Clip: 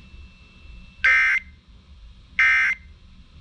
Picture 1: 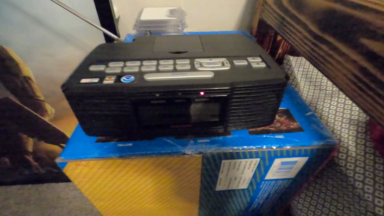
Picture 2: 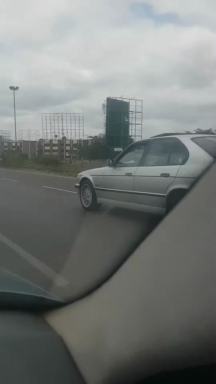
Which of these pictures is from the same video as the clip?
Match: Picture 1